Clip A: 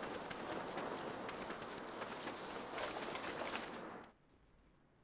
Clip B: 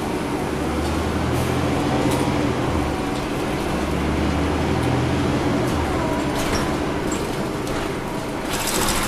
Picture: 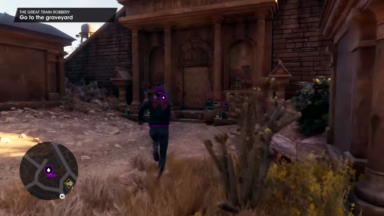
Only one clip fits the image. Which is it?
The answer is A